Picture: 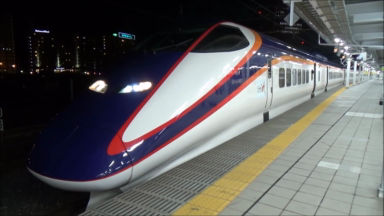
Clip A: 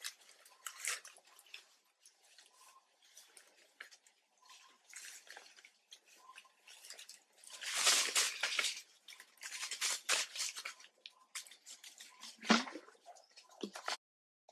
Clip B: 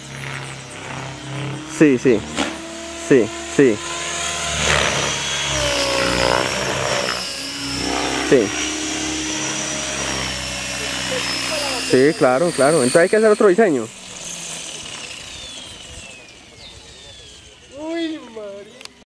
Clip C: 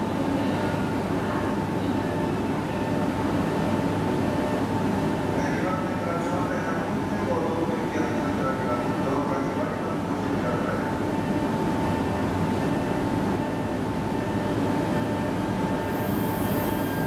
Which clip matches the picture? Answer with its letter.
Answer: C